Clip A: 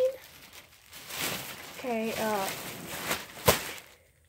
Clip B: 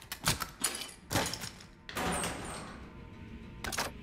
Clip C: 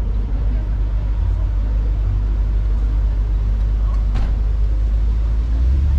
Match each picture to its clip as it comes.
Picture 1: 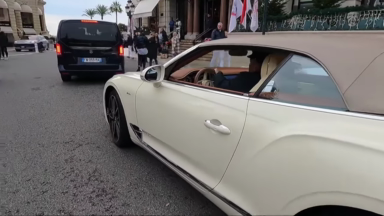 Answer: C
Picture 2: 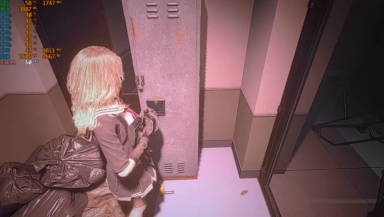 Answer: B